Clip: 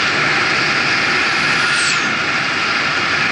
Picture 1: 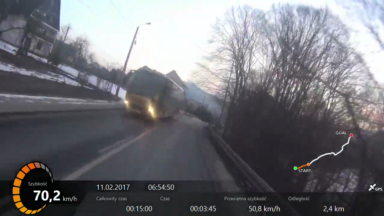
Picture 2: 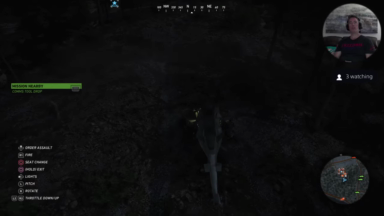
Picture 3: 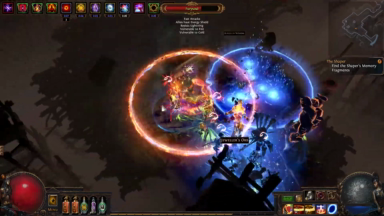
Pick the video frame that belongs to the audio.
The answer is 1